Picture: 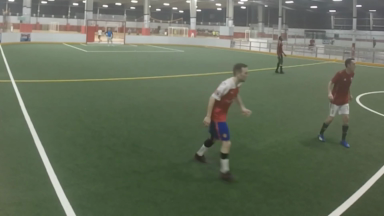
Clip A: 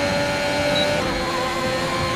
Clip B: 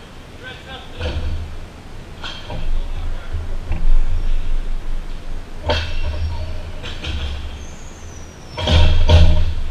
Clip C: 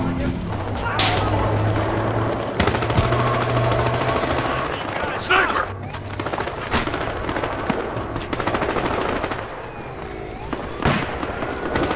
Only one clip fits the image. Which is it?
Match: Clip B